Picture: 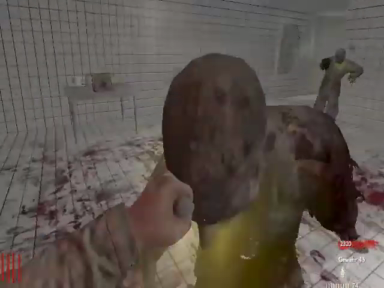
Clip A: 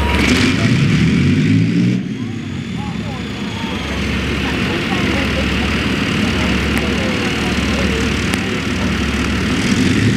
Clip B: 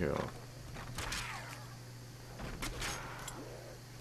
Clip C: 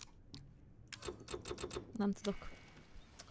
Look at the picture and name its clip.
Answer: B